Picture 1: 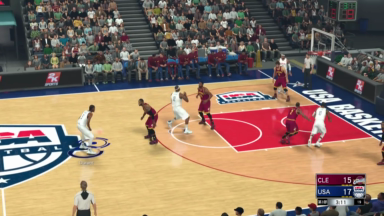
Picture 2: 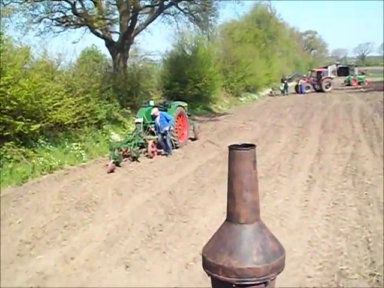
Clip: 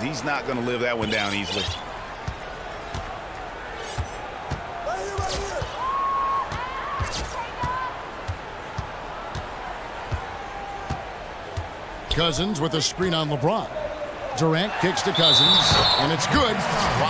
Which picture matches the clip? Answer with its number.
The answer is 1